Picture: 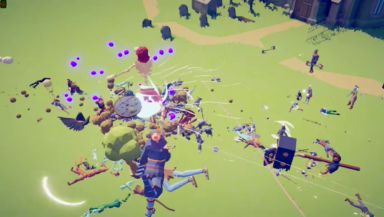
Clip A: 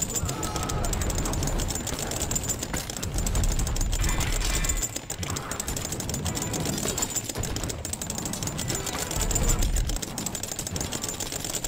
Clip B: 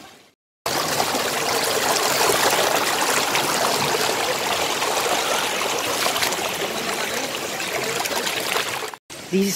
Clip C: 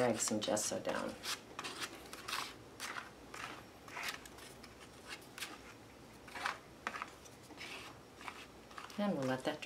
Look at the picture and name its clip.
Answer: A